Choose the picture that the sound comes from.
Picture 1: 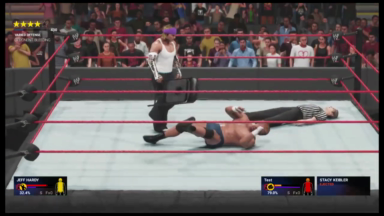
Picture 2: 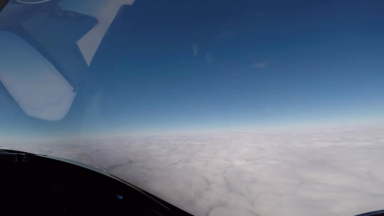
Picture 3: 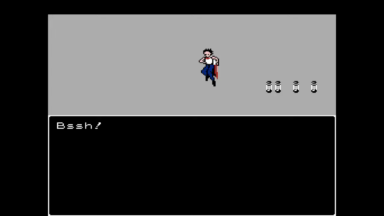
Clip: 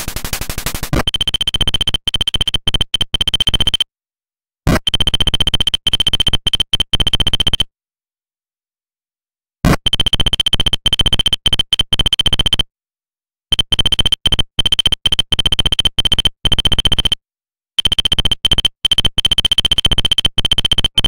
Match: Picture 3